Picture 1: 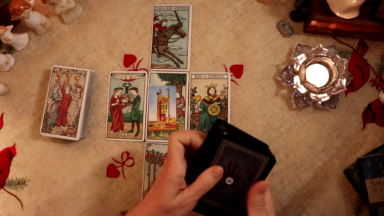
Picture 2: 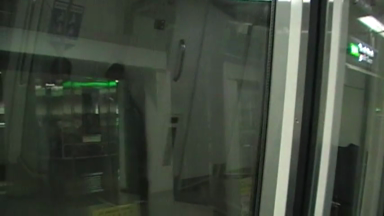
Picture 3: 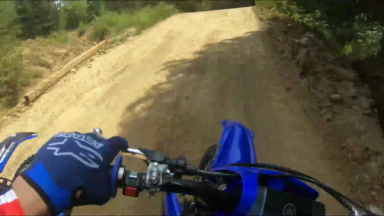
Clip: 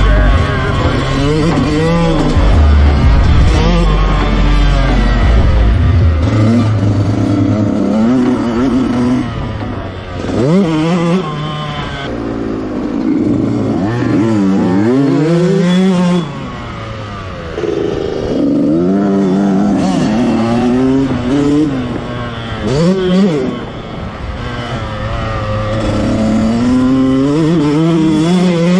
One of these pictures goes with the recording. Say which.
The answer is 3